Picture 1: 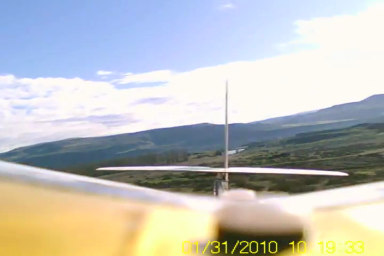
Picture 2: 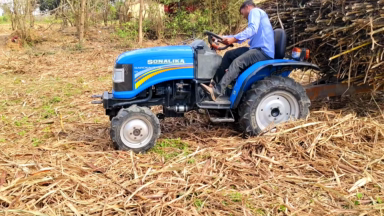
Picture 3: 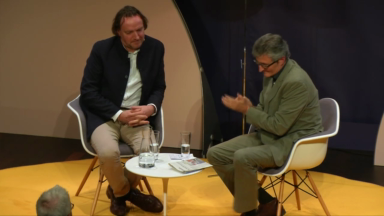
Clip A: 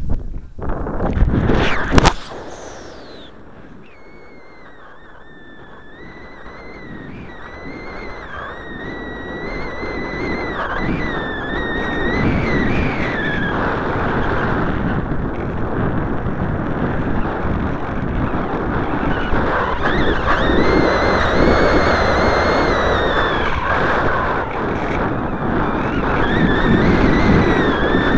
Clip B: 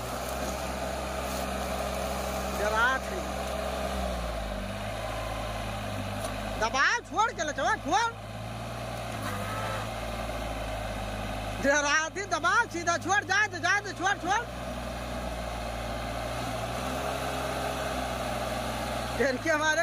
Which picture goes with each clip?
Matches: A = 1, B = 2